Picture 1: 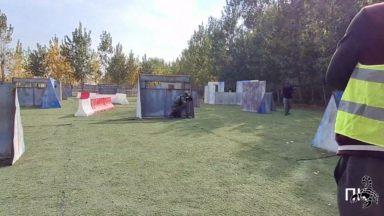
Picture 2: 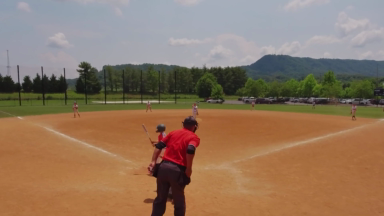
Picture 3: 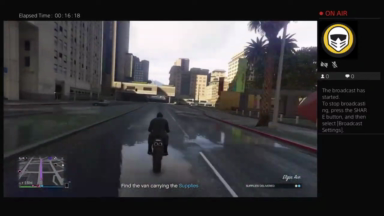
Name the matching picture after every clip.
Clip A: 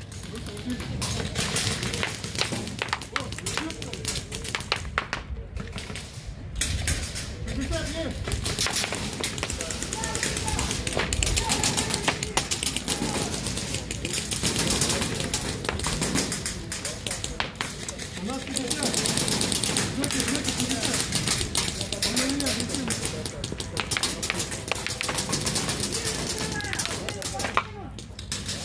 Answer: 1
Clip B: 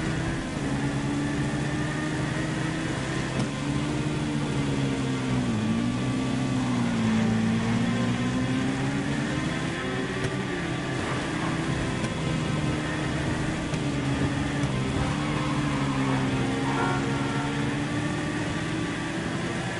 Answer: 3